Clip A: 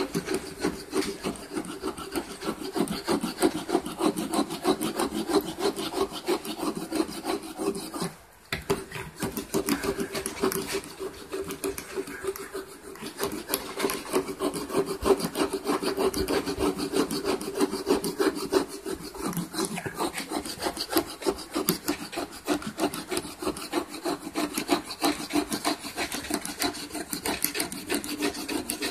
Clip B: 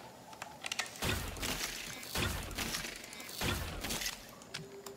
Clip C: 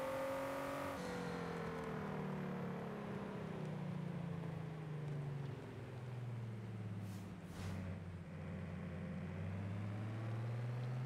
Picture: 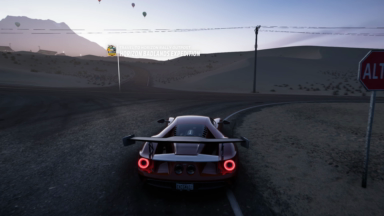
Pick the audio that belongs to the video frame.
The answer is C